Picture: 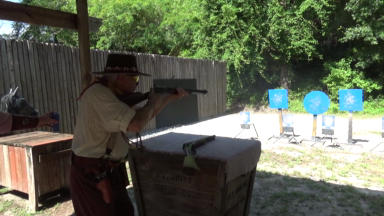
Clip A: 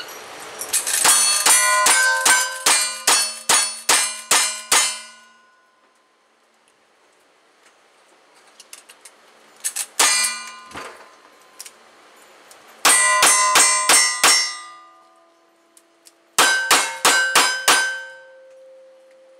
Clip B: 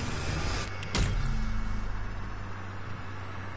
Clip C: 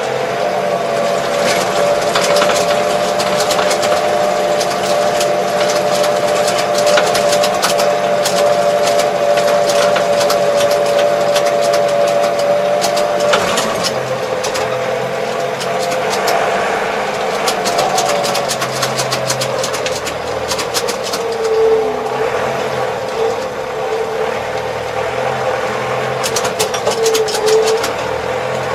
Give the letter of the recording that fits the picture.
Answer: A